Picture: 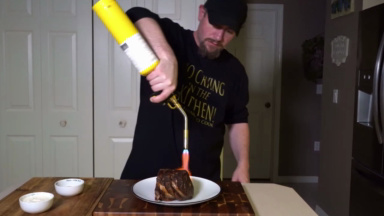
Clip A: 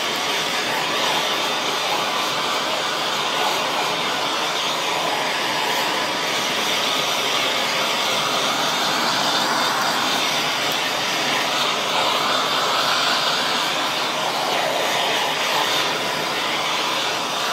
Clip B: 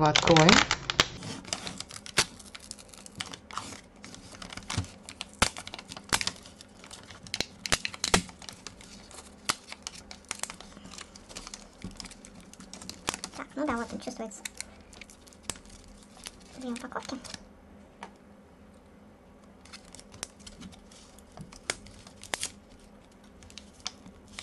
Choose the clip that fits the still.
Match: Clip A